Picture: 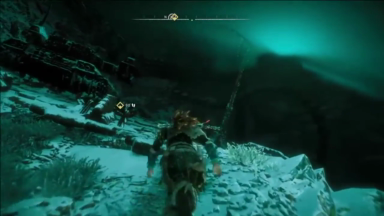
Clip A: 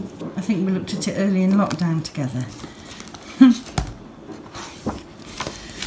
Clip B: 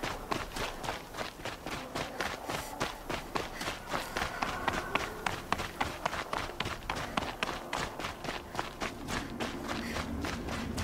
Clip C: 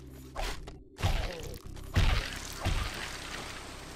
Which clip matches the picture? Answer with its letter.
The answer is B